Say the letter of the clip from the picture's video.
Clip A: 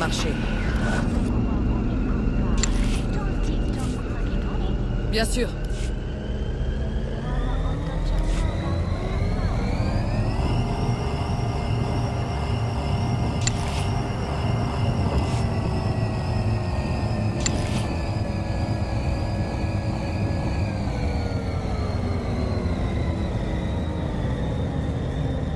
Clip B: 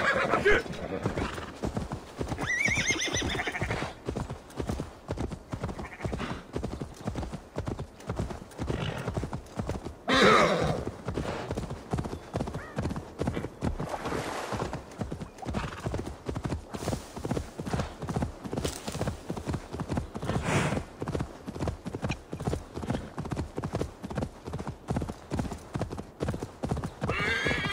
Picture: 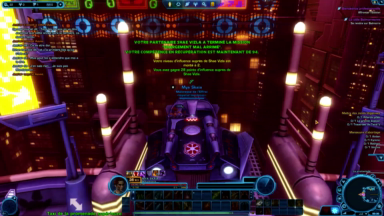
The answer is A